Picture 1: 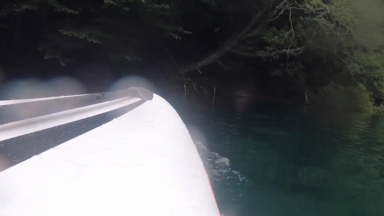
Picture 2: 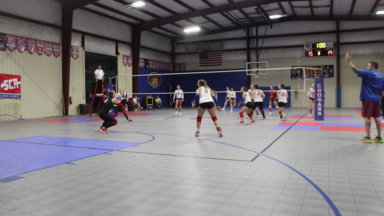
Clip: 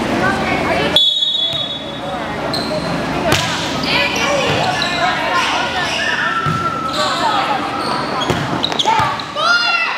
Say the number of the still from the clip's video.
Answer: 2